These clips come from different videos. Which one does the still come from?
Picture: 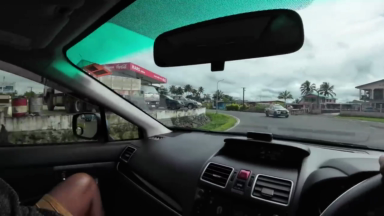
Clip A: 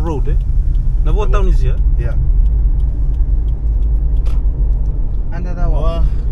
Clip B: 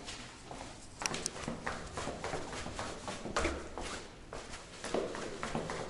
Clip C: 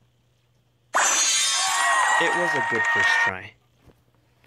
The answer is A